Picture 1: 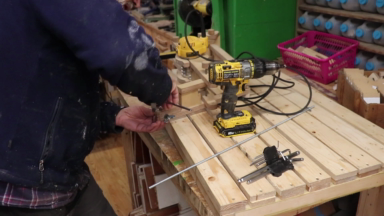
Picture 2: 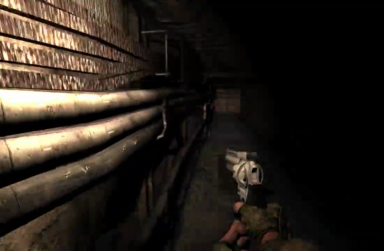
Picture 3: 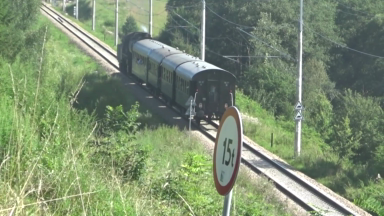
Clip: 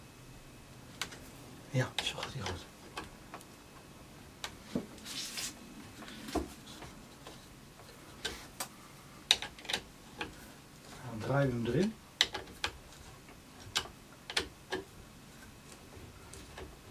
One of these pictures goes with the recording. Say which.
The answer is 1